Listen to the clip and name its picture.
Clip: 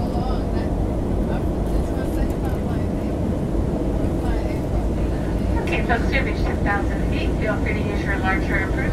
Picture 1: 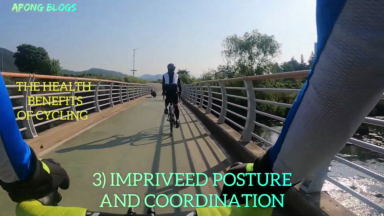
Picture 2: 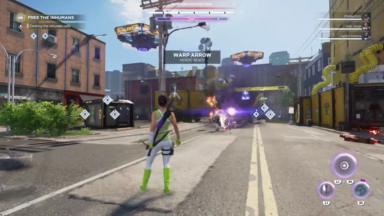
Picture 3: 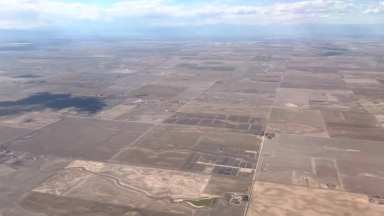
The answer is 3